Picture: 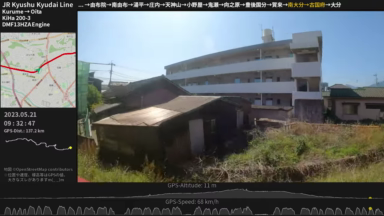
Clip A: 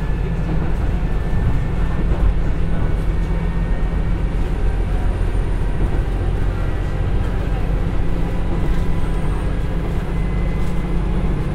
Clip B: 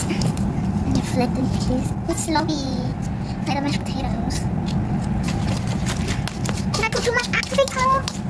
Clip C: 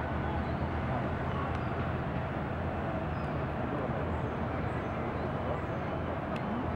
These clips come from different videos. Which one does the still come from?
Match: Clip A